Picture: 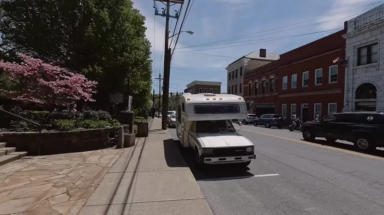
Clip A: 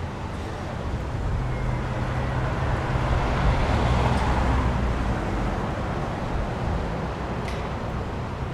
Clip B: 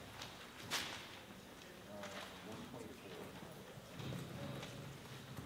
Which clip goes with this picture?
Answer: A